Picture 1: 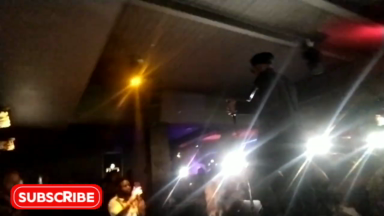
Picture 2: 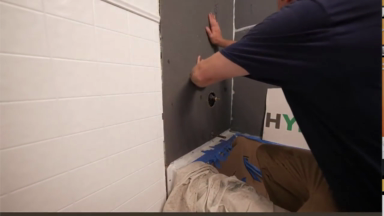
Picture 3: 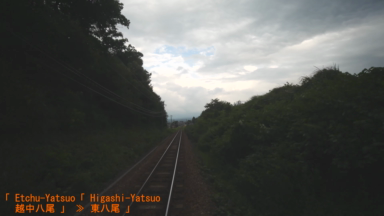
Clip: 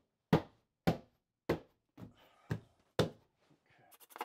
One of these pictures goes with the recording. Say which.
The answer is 2